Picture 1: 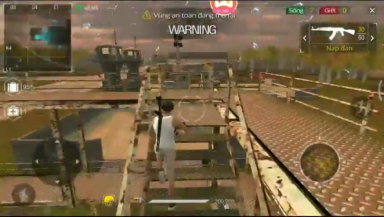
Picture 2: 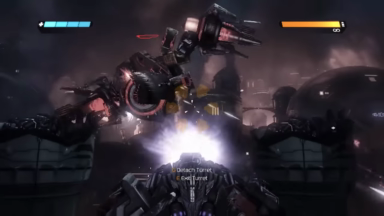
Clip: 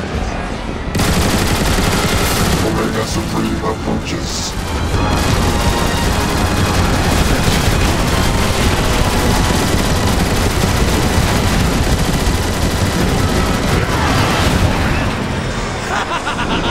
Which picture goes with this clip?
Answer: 2